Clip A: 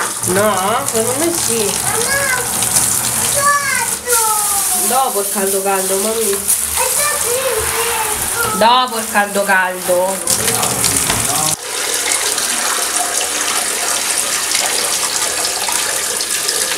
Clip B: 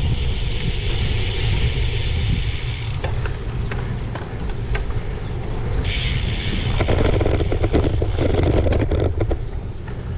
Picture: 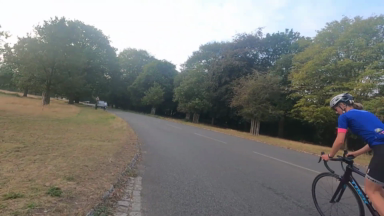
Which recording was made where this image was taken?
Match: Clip B